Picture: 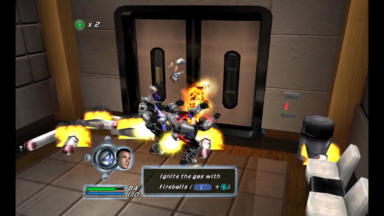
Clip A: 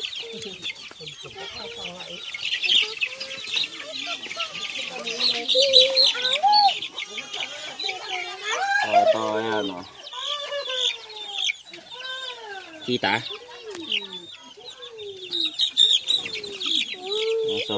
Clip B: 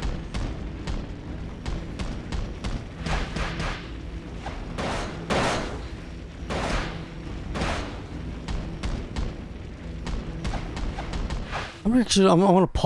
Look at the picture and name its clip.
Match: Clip B